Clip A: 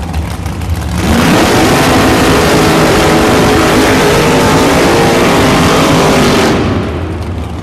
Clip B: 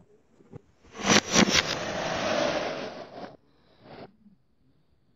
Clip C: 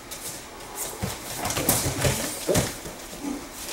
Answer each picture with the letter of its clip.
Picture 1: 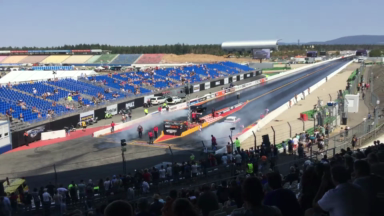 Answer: A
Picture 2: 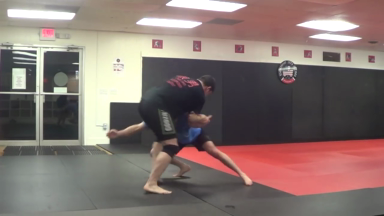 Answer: C